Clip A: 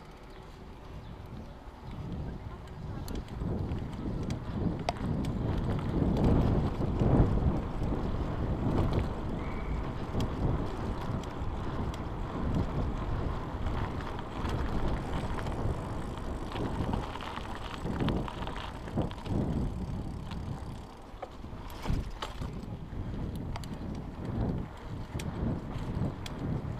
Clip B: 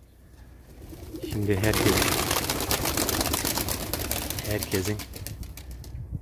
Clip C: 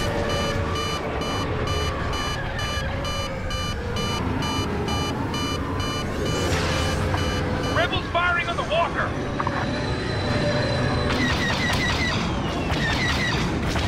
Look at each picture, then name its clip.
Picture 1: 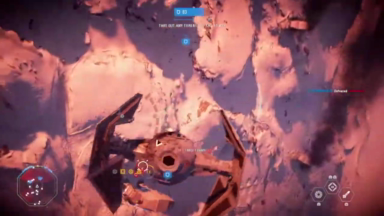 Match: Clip C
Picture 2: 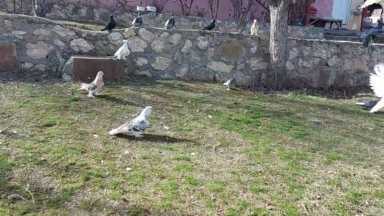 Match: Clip B